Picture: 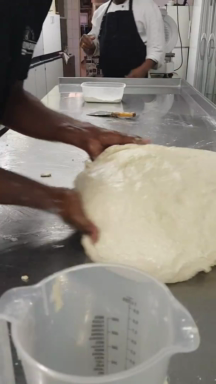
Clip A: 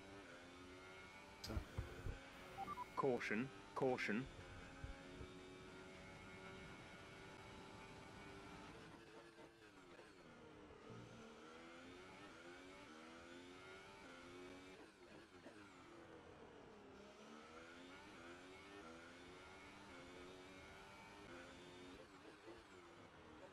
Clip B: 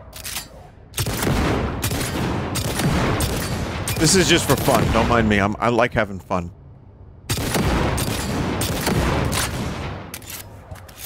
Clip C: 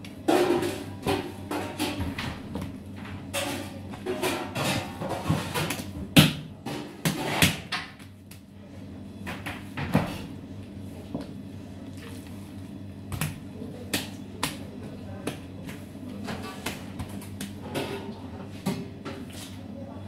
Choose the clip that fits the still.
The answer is C